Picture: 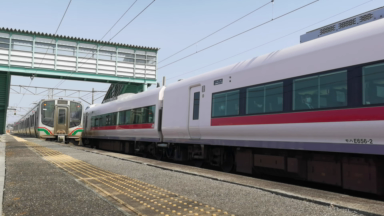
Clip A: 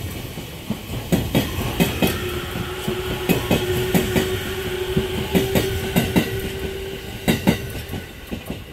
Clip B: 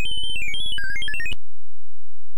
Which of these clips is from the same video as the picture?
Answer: A